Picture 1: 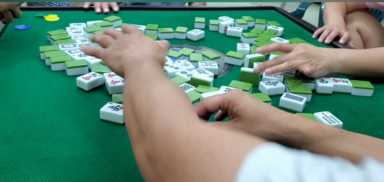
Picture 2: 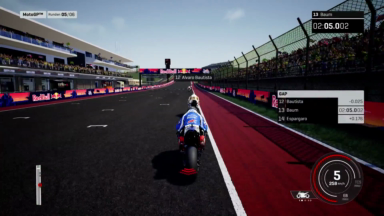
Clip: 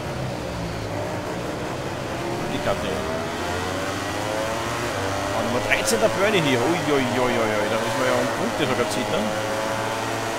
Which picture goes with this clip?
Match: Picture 2